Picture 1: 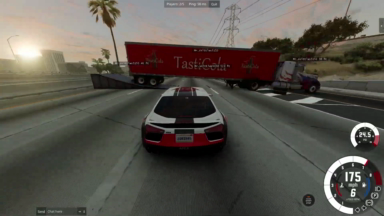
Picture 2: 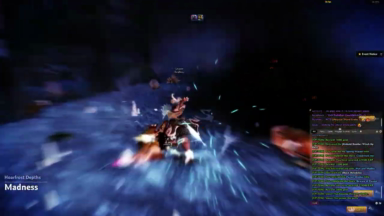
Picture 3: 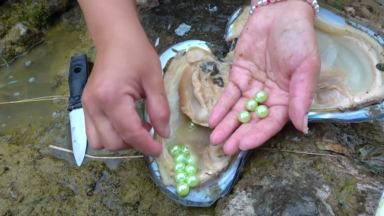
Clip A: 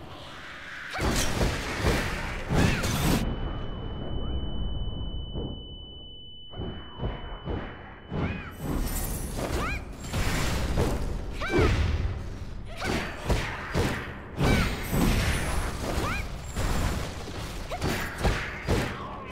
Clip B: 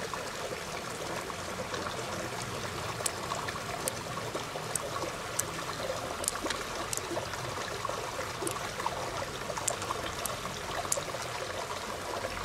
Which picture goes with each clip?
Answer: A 2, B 3